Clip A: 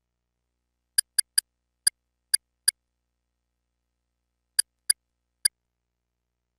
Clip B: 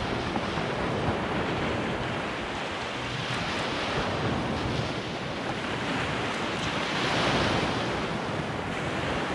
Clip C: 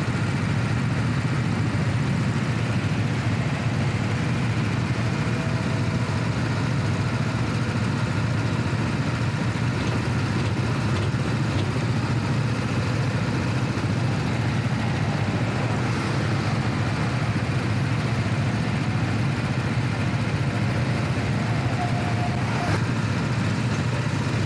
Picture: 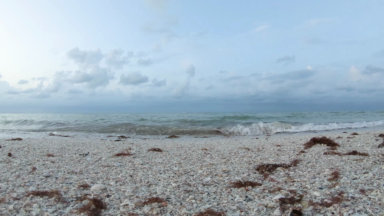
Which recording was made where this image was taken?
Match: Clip B